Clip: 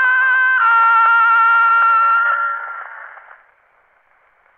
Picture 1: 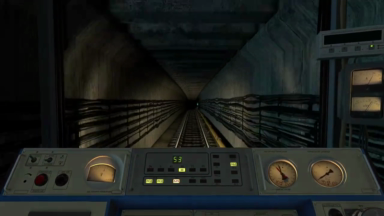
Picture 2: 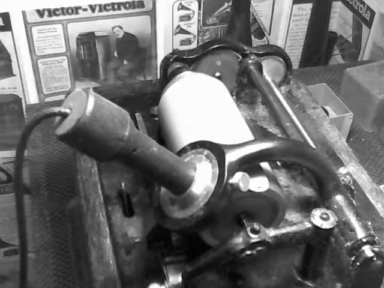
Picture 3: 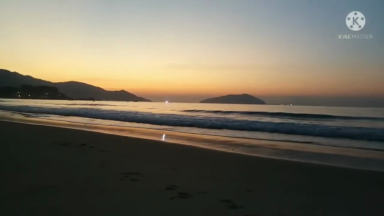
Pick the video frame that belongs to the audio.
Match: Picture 2